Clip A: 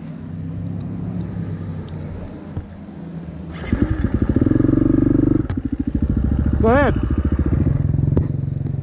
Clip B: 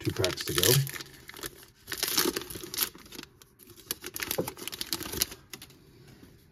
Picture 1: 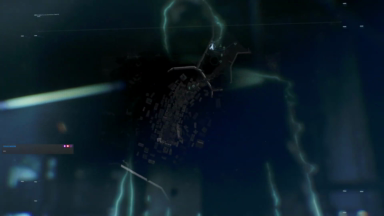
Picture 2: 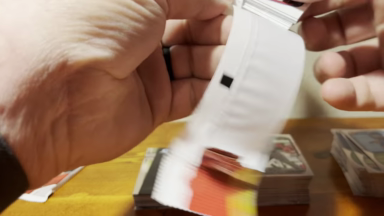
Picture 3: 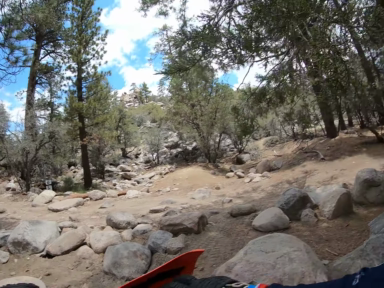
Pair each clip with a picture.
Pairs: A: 3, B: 2